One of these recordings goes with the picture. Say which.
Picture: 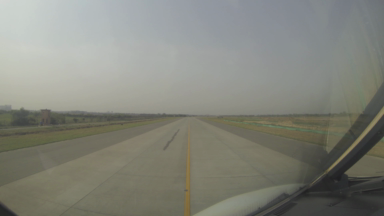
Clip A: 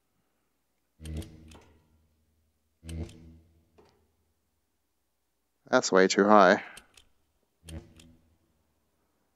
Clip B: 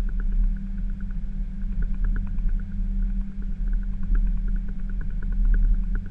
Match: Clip B